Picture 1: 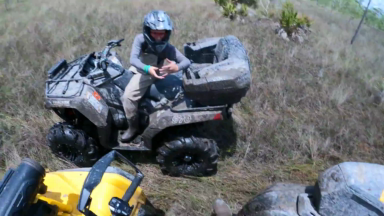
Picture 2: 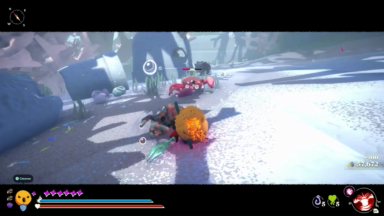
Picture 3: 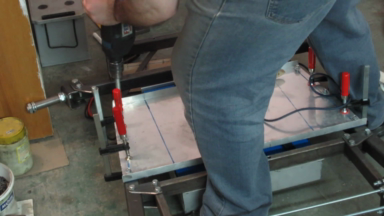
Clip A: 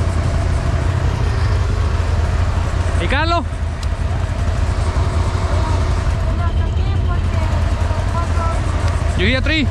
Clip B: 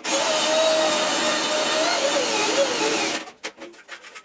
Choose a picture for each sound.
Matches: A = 1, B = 3